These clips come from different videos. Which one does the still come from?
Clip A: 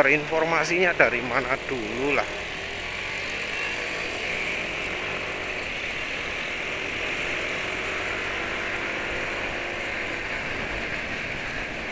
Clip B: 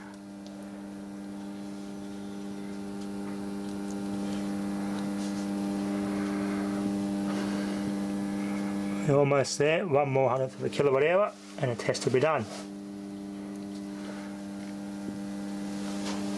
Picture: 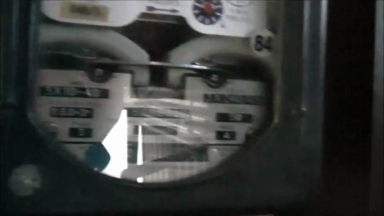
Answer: B